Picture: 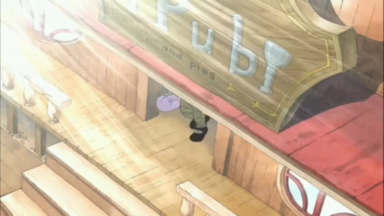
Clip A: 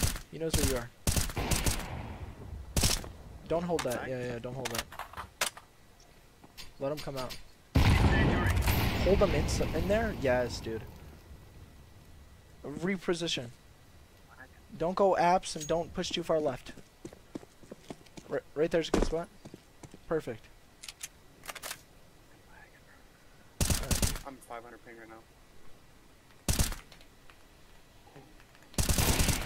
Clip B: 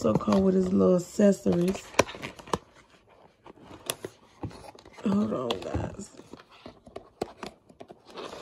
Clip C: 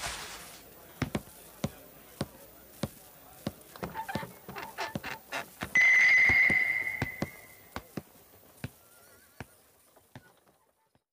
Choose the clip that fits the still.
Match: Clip C